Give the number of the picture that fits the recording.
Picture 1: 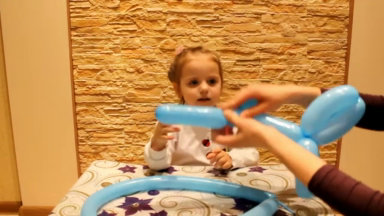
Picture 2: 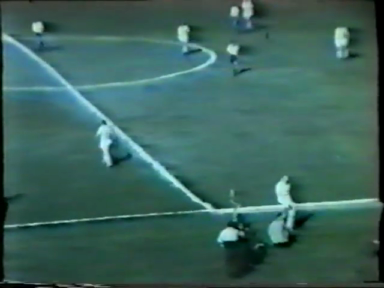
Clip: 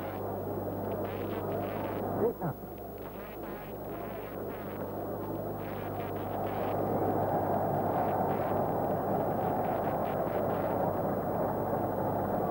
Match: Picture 2